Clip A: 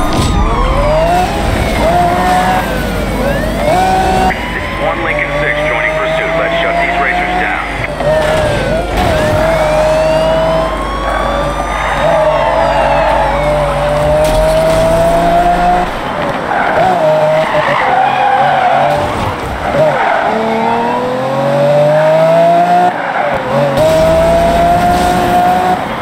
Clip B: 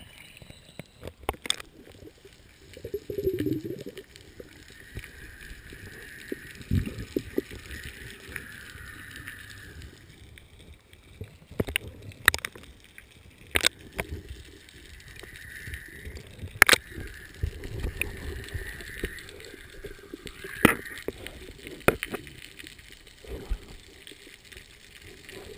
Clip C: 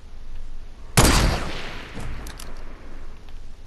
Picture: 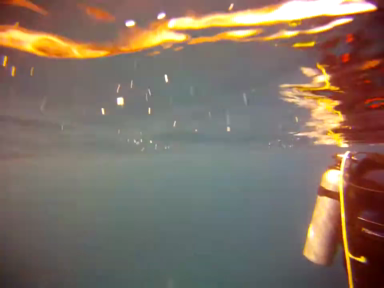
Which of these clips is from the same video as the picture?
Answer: B